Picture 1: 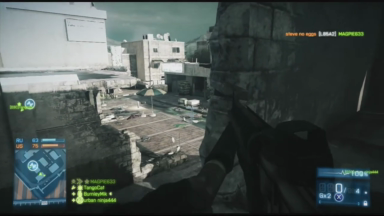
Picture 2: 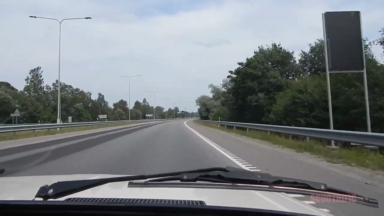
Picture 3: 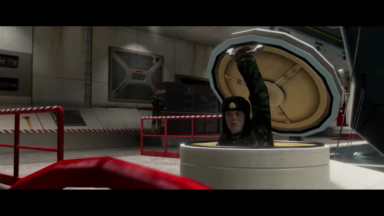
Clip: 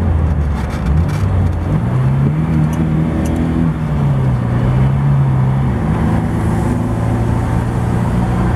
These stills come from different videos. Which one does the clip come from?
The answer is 2